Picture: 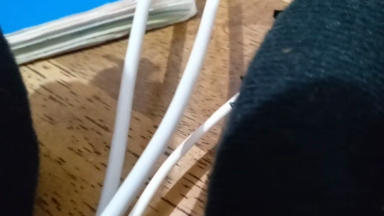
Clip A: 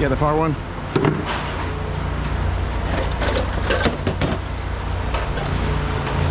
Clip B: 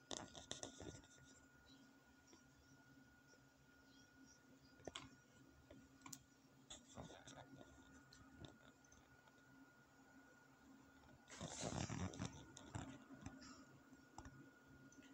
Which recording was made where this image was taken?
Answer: B